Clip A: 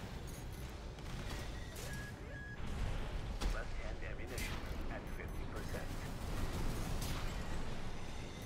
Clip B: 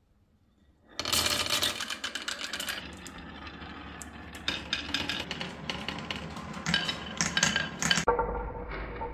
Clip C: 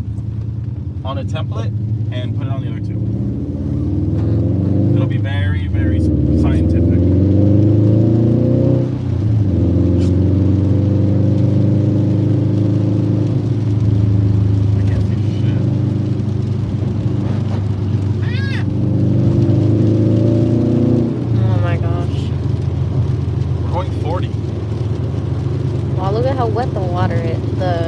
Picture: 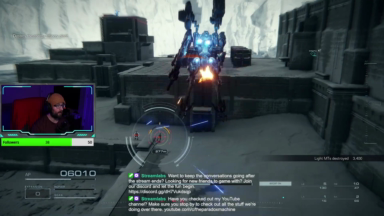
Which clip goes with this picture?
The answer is A